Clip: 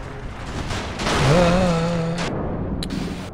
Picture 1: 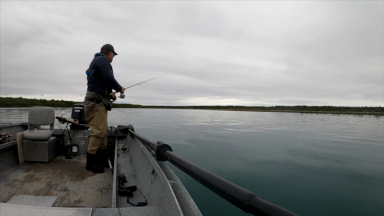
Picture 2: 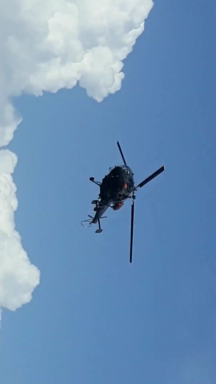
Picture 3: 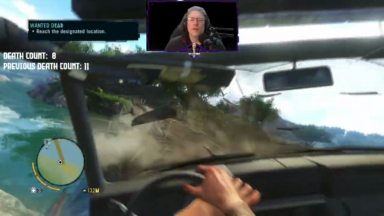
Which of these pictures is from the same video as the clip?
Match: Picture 3